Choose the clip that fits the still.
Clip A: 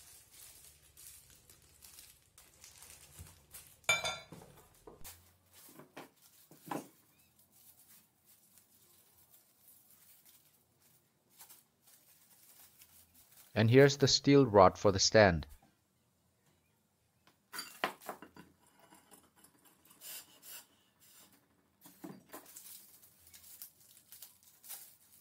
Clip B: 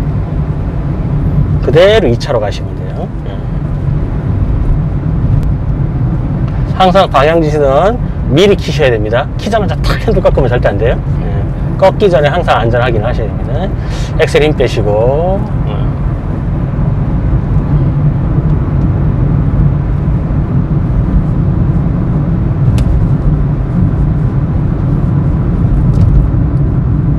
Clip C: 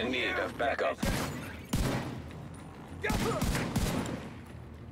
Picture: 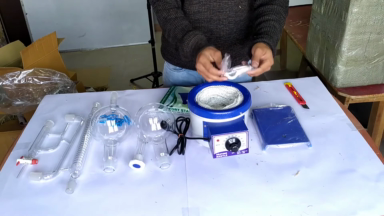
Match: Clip A